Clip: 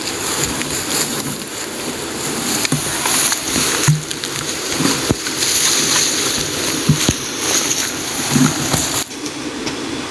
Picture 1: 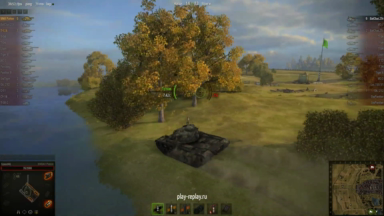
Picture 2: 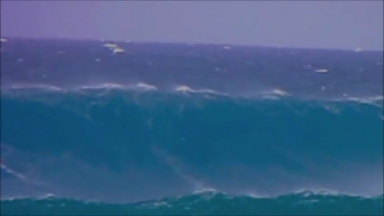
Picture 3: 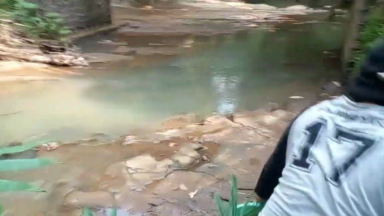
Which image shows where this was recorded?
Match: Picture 3